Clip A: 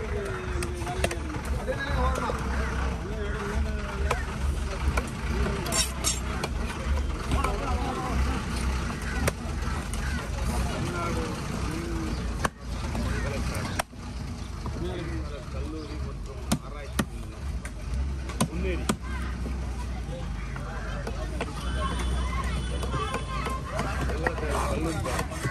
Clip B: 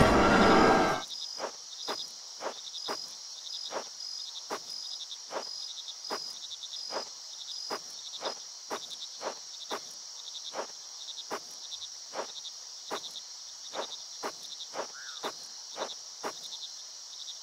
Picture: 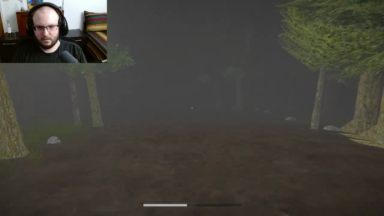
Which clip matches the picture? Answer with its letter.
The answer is B